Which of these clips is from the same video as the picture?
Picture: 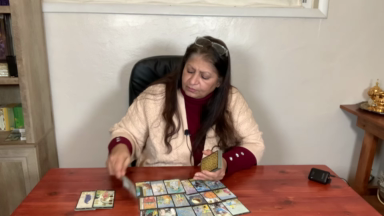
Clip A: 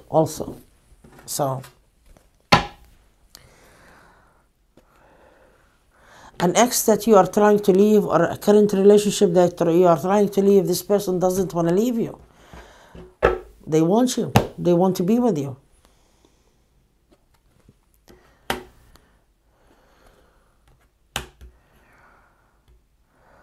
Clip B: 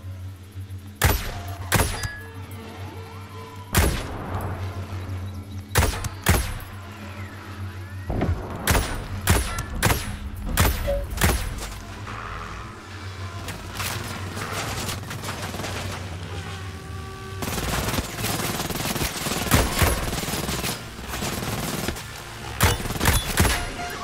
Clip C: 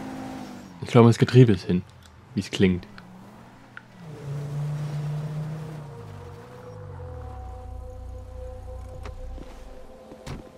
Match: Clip A